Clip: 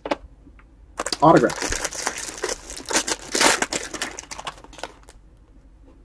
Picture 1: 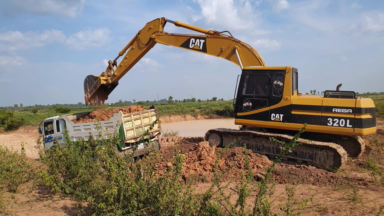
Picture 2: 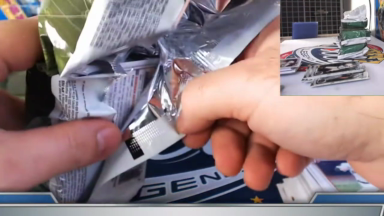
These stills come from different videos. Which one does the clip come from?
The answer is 2